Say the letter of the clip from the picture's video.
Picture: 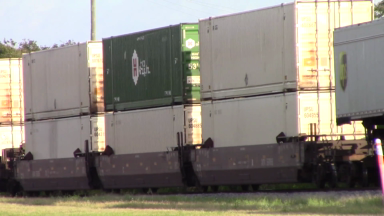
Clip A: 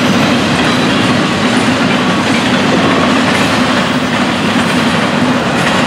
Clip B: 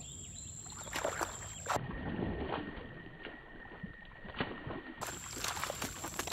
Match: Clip A